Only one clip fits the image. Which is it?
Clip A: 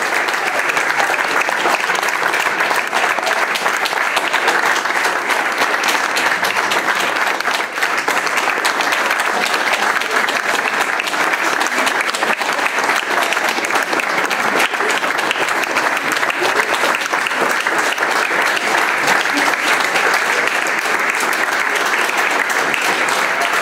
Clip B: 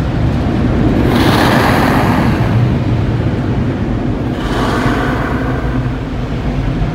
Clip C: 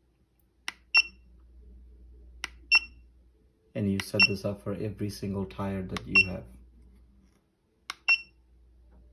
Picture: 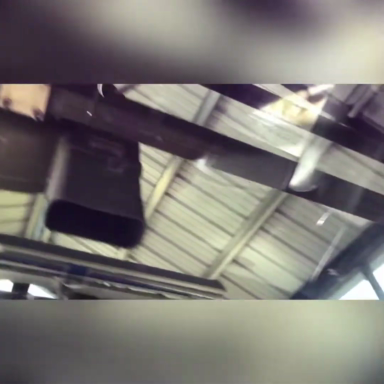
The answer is B